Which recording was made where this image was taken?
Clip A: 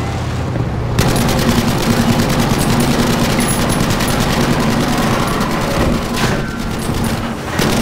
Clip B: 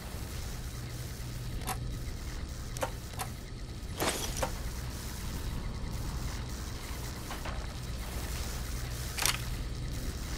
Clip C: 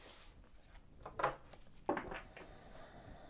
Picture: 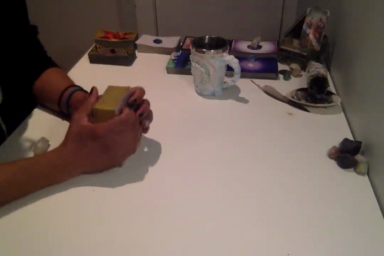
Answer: C